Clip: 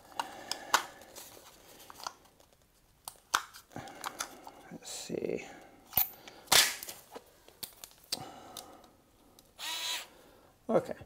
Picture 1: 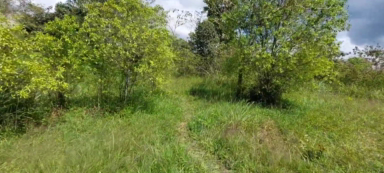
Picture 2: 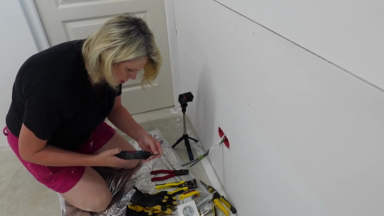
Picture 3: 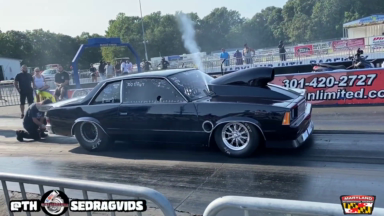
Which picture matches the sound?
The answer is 2